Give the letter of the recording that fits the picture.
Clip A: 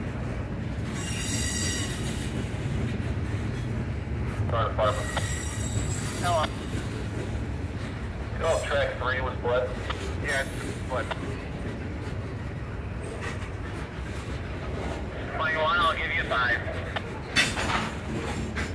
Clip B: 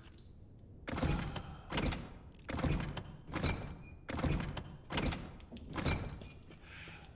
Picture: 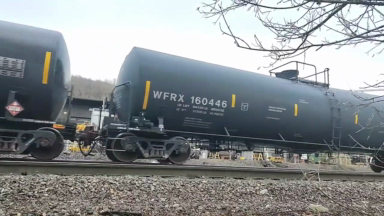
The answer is A